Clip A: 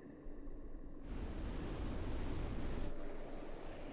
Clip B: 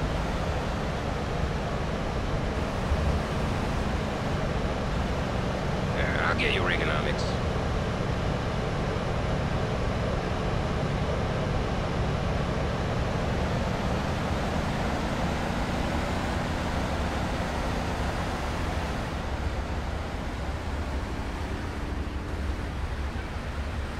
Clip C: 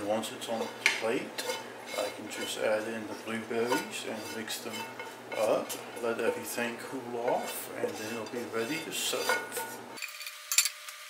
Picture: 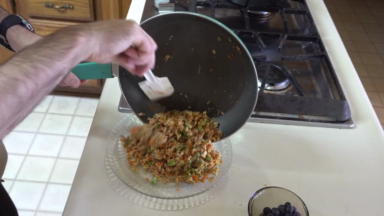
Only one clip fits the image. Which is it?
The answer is C